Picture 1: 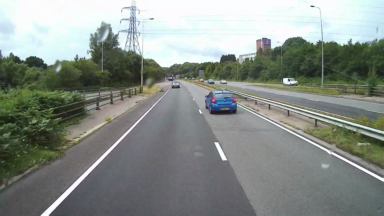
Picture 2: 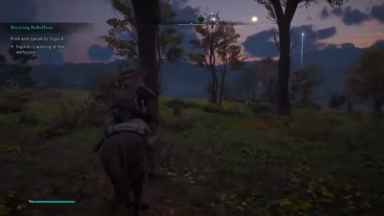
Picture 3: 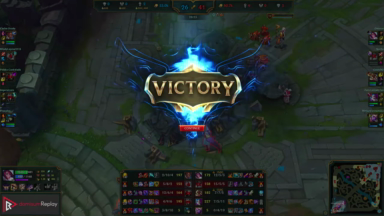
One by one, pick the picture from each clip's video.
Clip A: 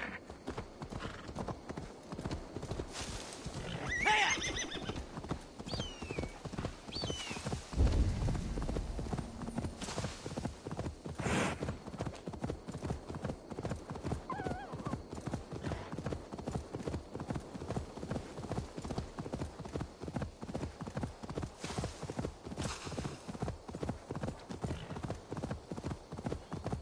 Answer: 2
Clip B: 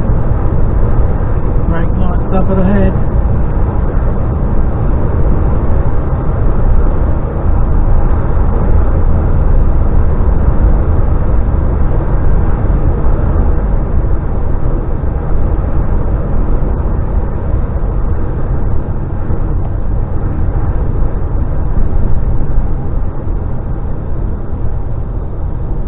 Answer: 1